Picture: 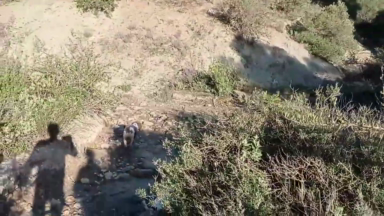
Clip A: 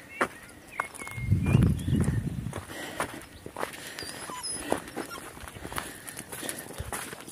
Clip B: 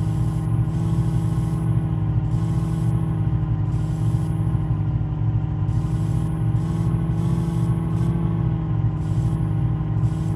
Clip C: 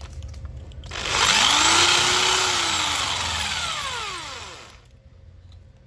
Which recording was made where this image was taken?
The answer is A